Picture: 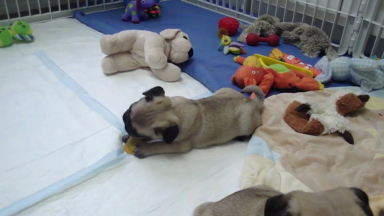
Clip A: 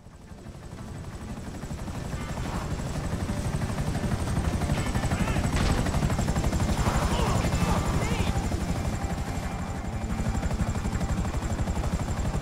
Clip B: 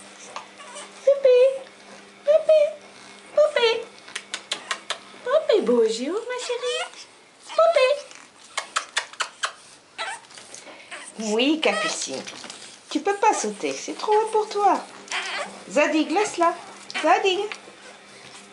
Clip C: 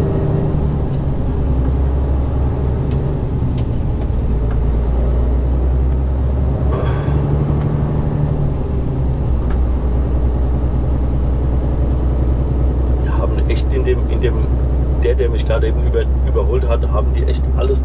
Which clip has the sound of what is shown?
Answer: B